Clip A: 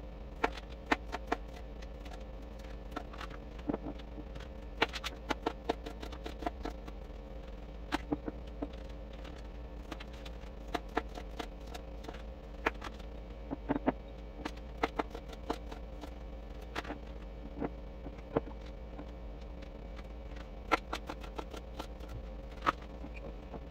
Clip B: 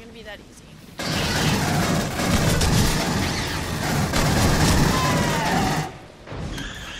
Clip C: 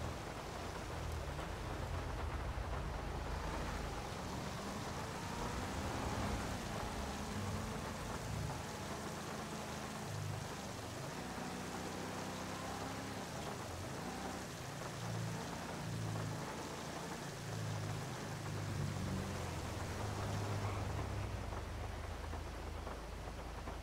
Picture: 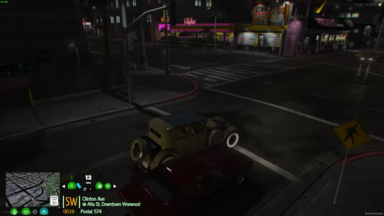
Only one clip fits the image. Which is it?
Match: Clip C